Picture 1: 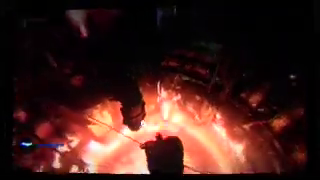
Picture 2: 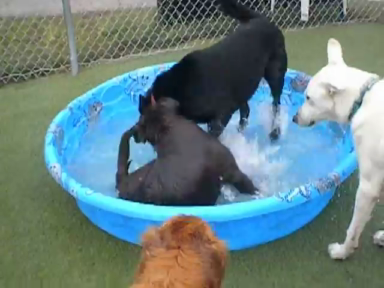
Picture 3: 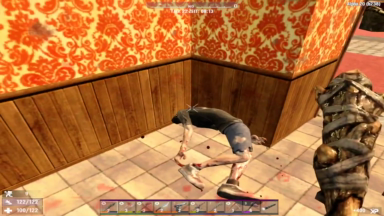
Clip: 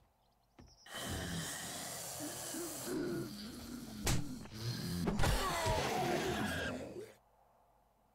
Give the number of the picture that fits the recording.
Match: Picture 3